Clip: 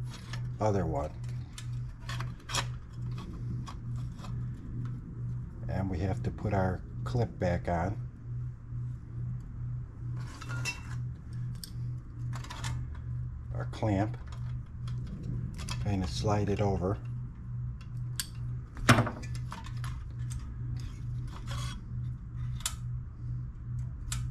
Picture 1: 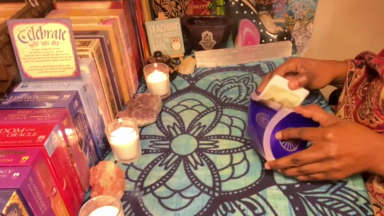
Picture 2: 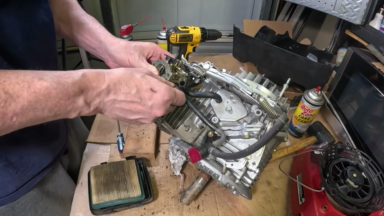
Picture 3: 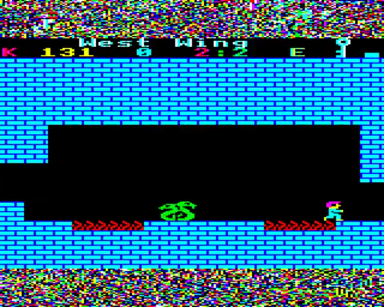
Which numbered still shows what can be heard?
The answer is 2